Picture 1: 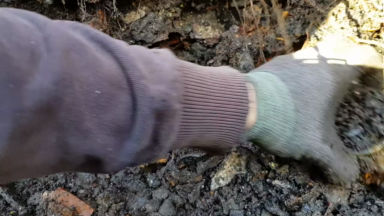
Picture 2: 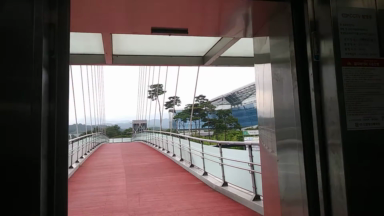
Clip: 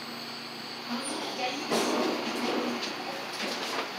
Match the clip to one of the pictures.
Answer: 2